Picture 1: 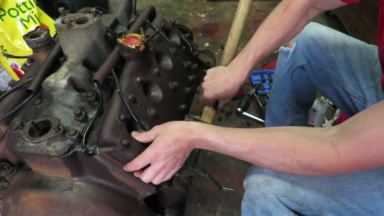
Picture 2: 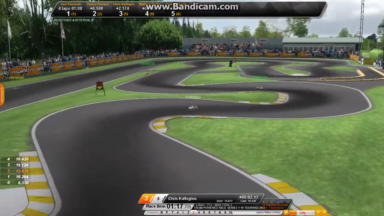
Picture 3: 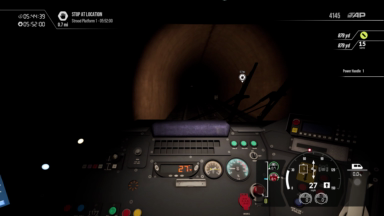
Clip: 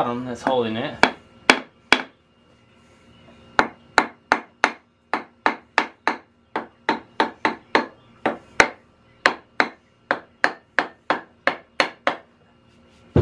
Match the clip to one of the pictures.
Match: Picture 1